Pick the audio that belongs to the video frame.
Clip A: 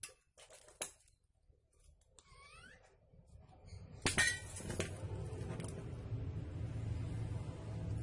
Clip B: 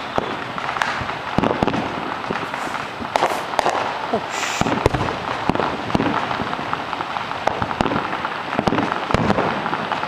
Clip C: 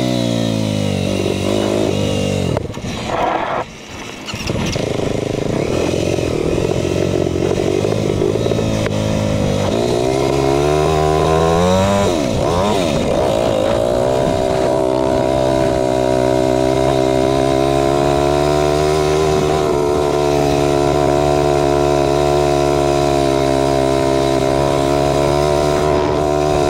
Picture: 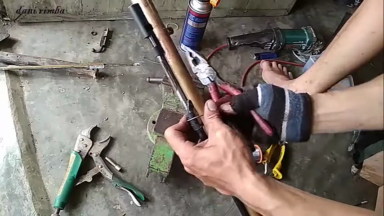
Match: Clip A